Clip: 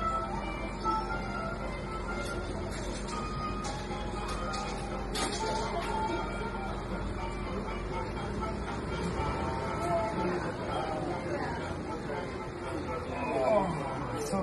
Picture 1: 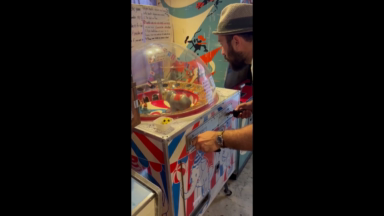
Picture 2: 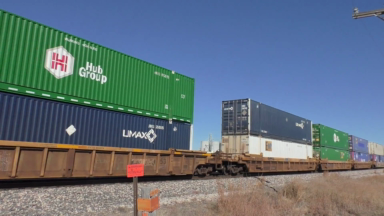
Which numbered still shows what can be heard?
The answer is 1